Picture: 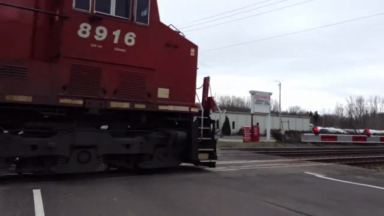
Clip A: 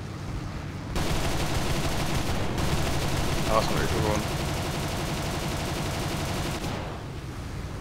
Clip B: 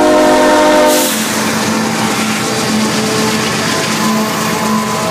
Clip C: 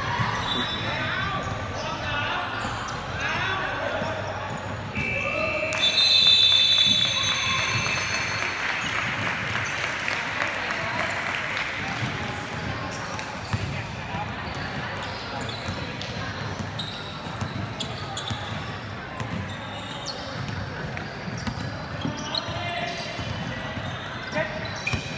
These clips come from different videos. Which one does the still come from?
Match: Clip B